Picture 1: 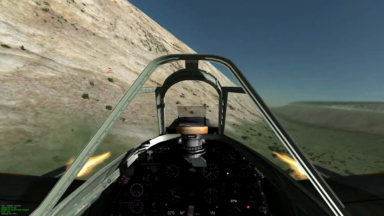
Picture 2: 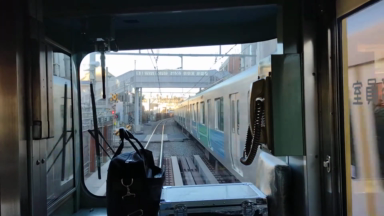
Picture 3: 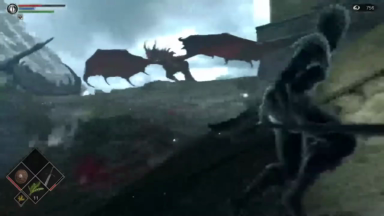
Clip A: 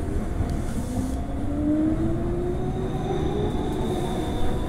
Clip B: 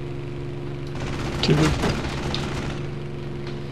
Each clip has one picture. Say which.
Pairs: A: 2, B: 1